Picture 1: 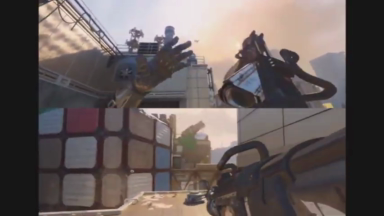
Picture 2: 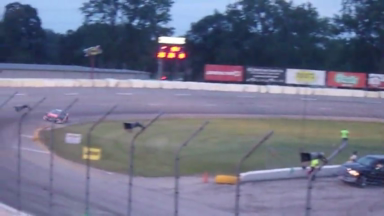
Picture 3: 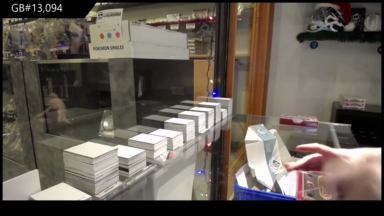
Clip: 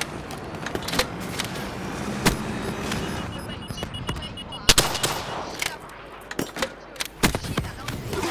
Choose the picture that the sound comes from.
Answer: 1